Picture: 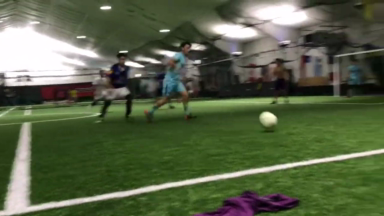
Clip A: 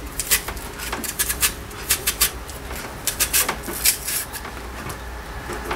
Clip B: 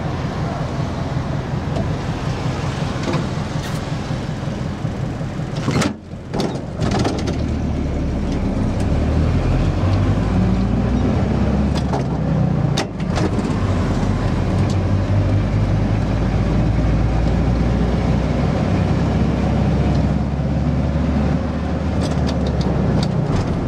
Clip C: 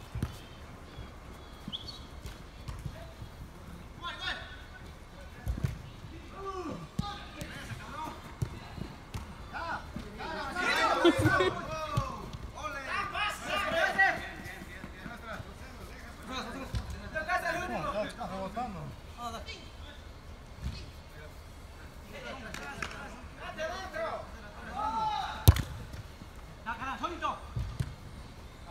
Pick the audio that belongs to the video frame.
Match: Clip C